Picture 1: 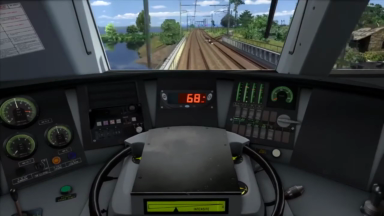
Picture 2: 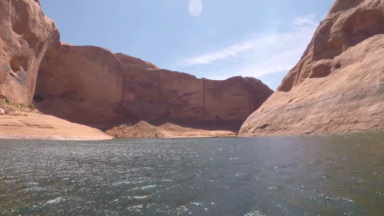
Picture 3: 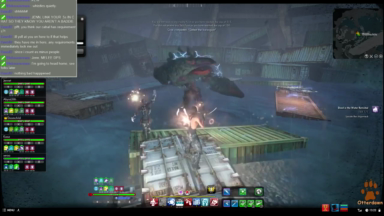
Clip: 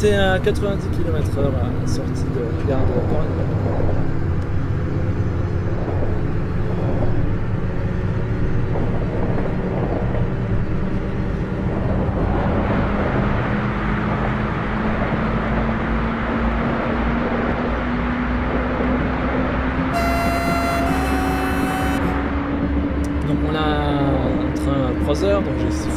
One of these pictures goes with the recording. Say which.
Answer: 1